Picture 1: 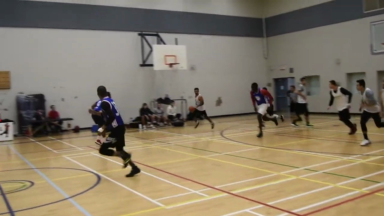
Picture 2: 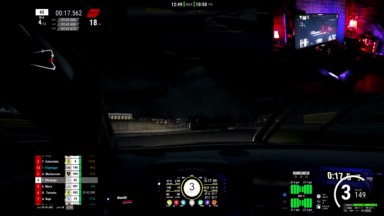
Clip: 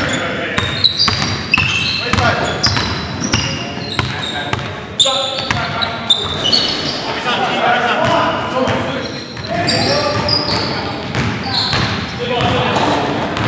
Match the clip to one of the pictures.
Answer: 1